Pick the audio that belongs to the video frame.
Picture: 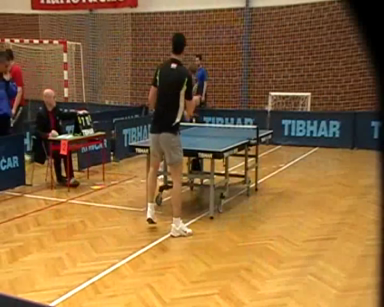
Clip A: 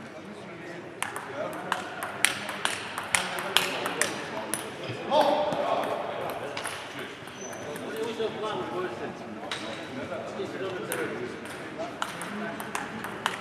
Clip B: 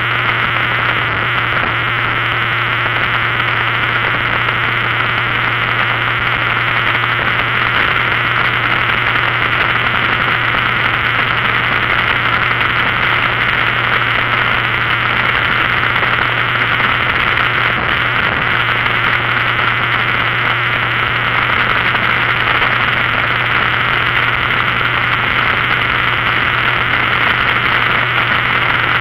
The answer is A